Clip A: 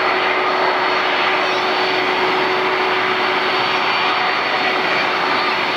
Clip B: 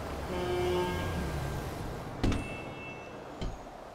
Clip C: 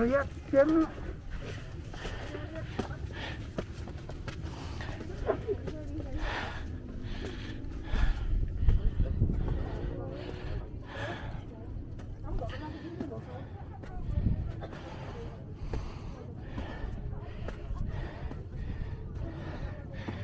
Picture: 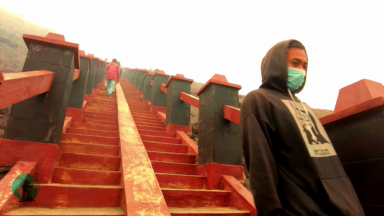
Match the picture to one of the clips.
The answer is C